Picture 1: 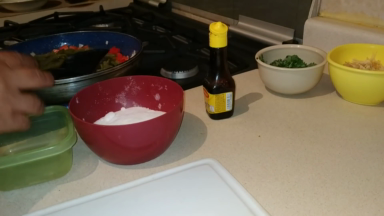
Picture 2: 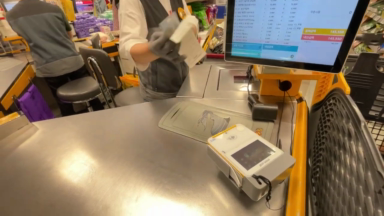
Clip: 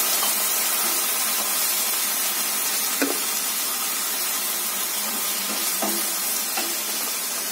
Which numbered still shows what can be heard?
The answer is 1